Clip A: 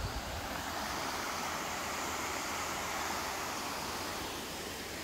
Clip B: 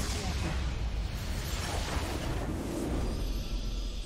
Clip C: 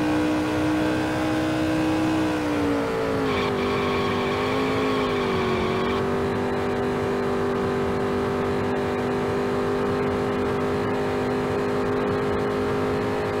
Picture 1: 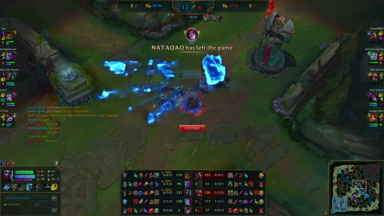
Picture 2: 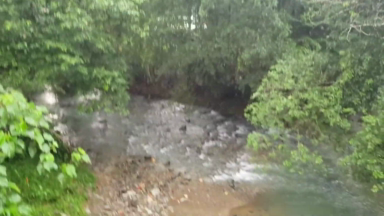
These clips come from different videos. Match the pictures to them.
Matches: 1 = B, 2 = A